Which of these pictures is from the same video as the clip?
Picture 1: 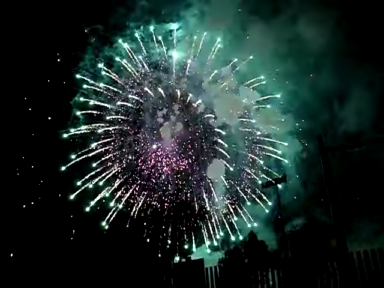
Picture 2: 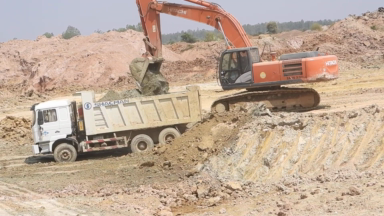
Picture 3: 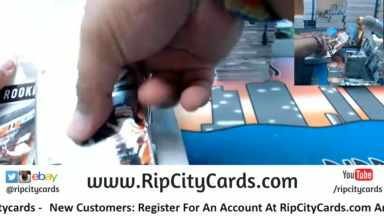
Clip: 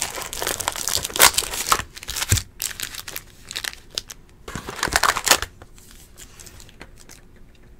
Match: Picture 3